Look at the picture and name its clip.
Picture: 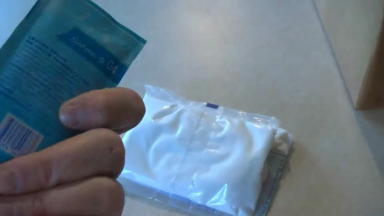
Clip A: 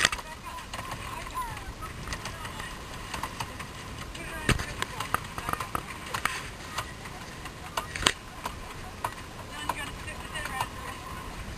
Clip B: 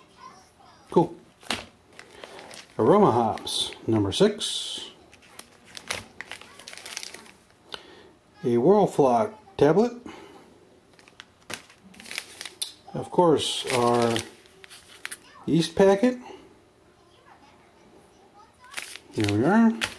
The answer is B